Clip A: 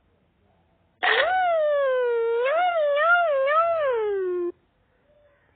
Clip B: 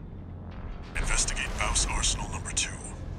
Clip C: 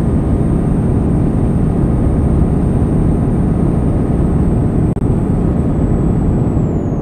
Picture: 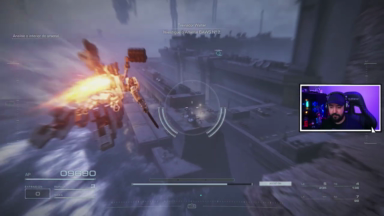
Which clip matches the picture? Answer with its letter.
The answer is B